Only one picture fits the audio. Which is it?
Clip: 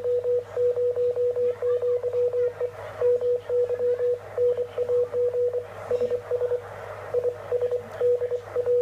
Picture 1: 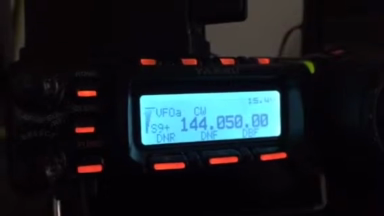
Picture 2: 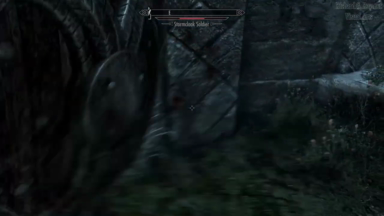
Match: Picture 1